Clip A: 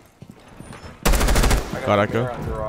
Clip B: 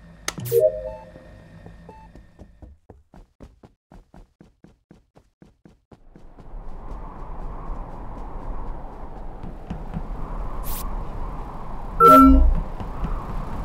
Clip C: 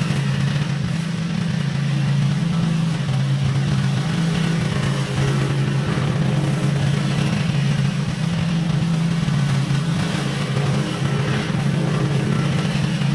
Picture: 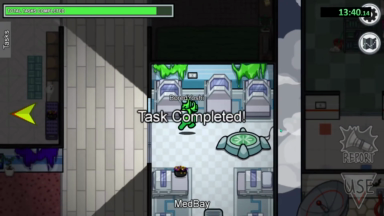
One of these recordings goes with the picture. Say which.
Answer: B